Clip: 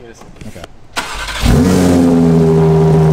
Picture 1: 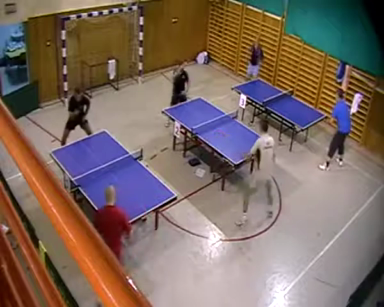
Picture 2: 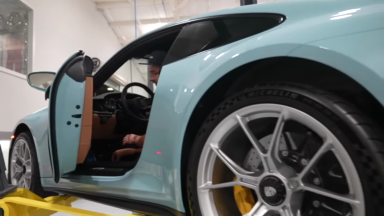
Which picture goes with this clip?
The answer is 2